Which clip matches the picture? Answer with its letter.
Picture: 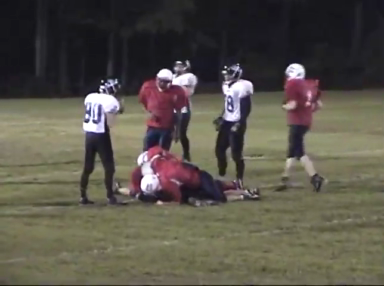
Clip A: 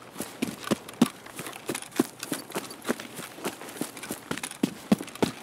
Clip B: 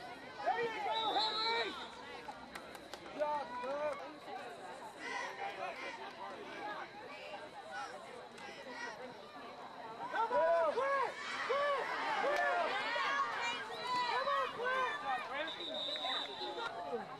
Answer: B